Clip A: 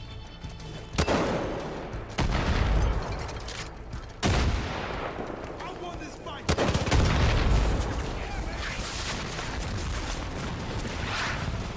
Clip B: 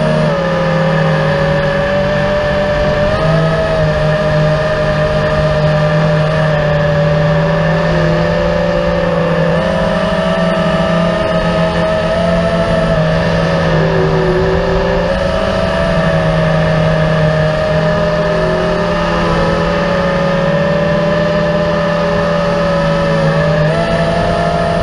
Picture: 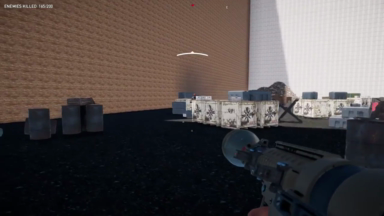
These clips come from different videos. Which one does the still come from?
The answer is A